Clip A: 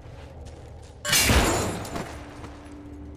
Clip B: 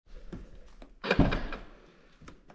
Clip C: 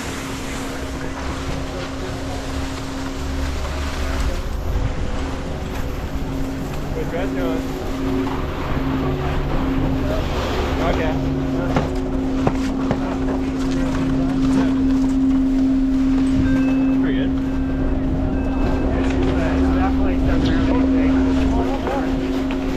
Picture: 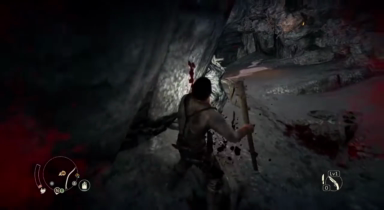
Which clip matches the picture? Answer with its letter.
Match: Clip A